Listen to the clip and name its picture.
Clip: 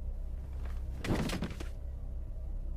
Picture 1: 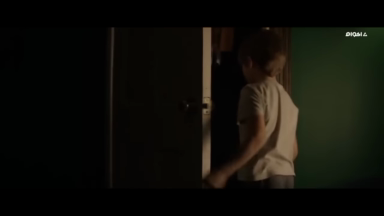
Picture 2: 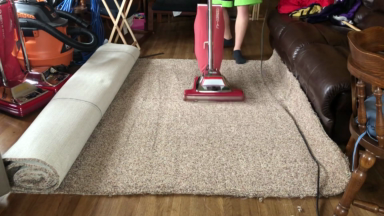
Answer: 1